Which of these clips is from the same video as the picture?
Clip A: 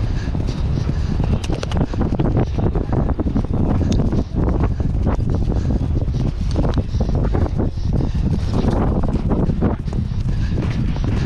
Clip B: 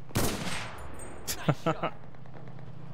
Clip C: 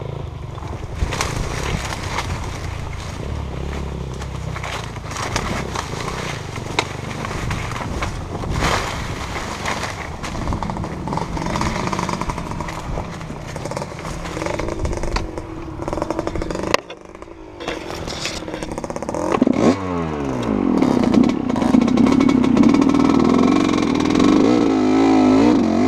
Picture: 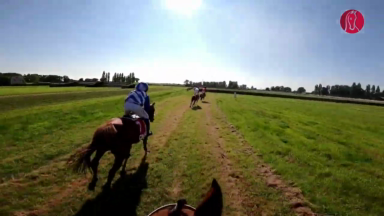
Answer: A